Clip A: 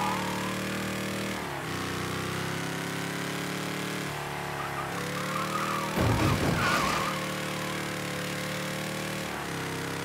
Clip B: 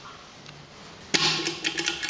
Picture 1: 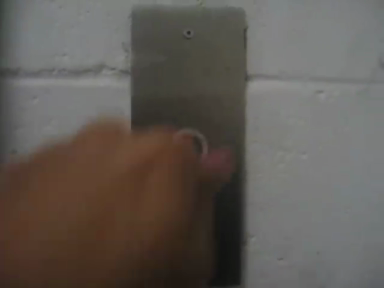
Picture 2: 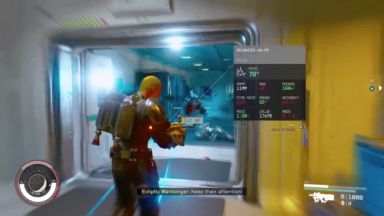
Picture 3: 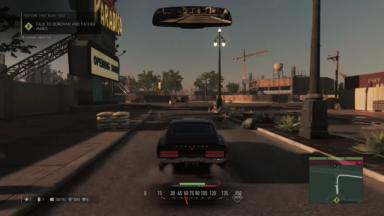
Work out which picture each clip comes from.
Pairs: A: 3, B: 1